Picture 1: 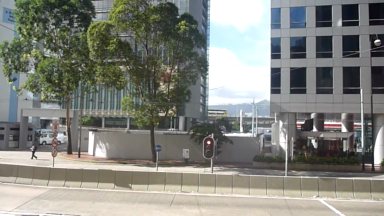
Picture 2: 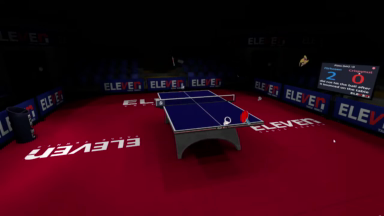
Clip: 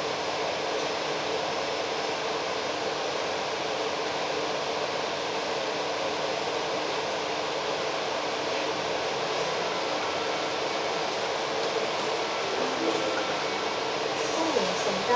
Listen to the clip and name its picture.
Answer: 1